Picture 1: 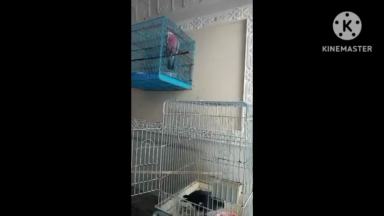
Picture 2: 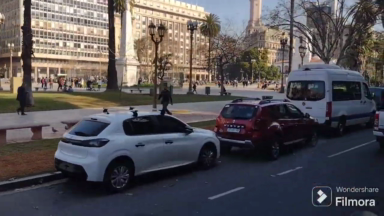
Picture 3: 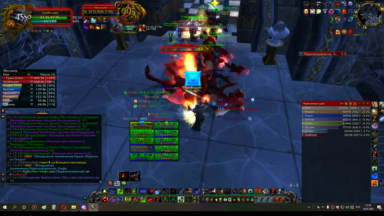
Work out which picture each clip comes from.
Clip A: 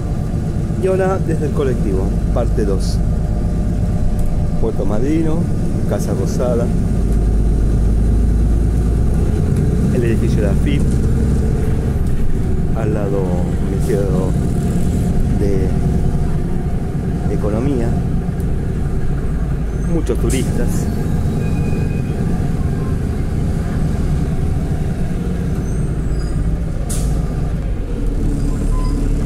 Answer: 2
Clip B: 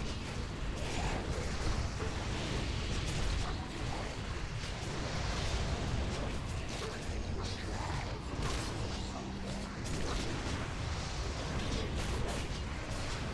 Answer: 3